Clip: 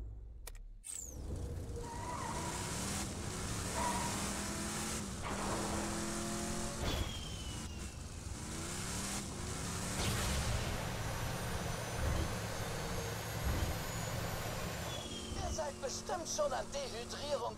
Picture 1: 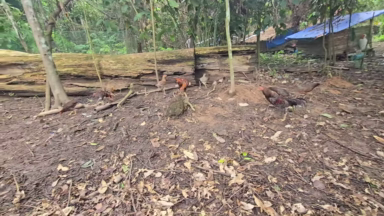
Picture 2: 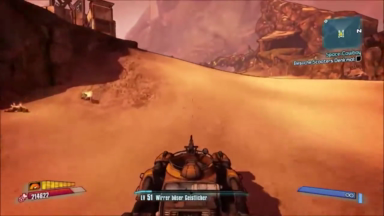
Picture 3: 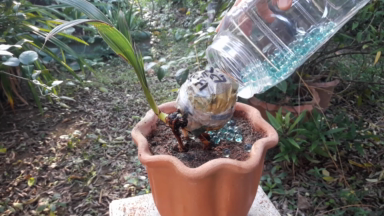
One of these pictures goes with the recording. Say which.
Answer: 2